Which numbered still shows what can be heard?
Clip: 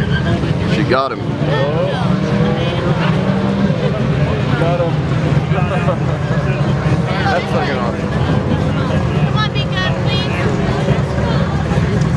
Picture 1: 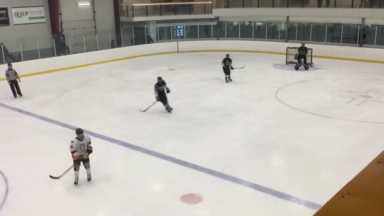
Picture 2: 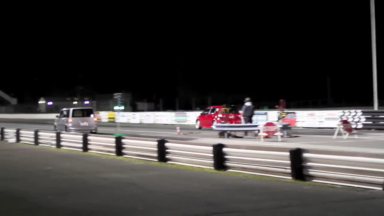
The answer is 2